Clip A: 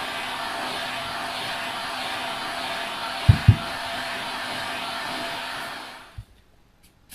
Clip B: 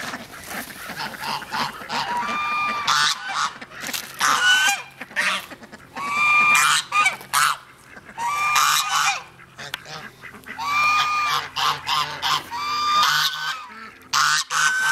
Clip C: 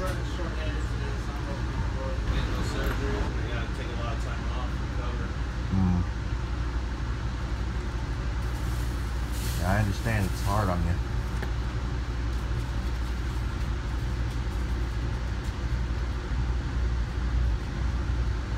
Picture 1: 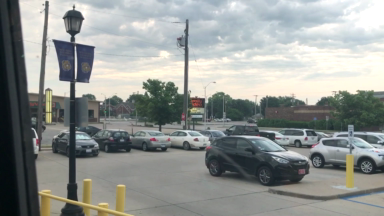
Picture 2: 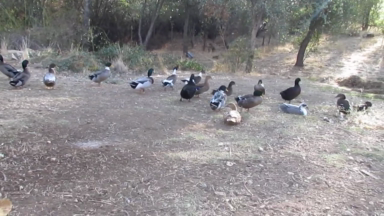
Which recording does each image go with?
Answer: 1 C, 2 B